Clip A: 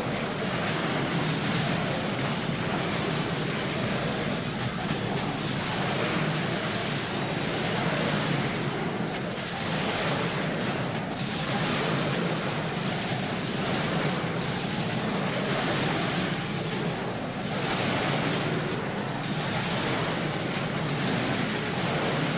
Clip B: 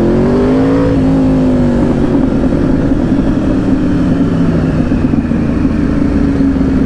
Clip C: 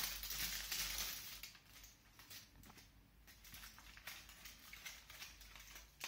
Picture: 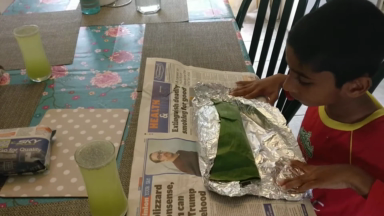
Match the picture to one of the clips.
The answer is C